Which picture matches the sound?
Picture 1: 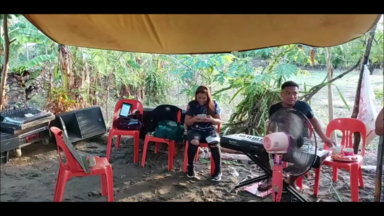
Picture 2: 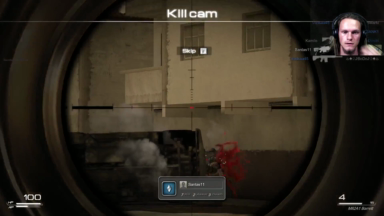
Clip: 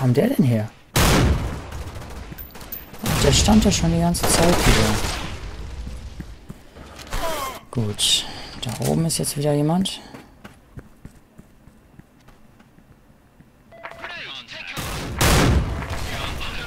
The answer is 2